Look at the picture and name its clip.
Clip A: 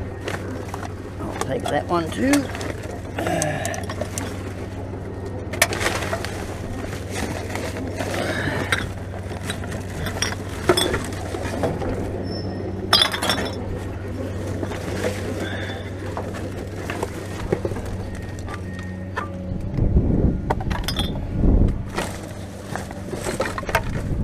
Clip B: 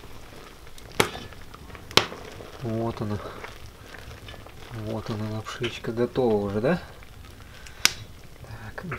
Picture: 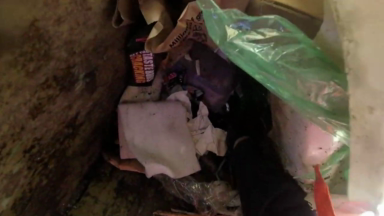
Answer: A